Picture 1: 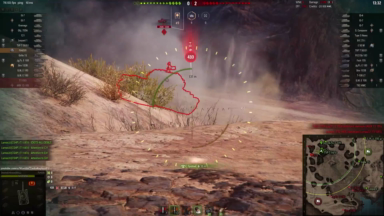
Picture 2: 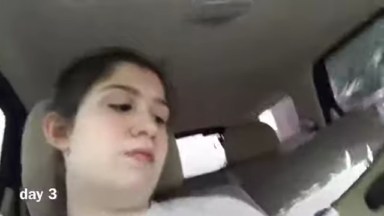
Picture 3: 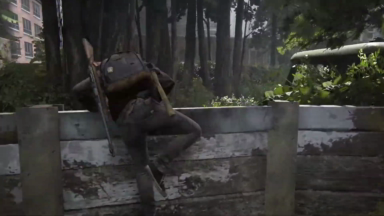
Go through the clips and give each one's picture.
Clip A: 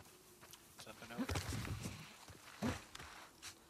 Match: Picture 3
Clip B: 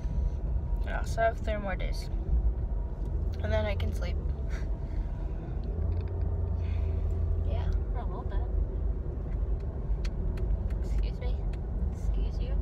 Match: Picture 2